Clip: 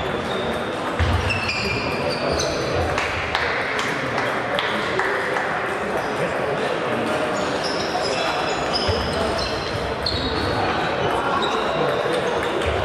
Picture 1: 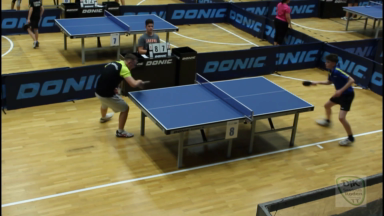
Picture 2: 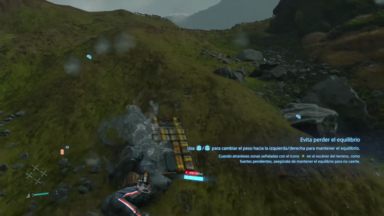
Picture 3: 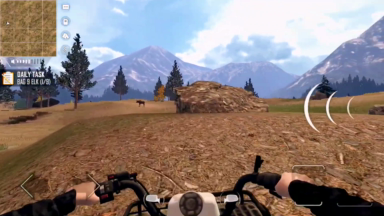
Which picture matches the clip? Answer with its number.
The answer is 1